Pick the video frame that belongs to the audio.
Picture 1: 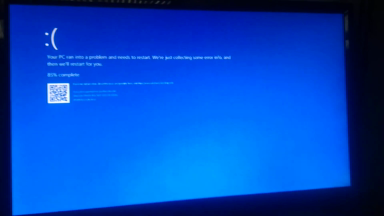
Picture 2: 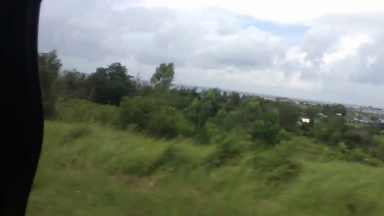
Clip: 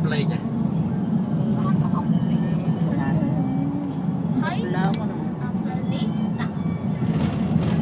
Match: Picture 2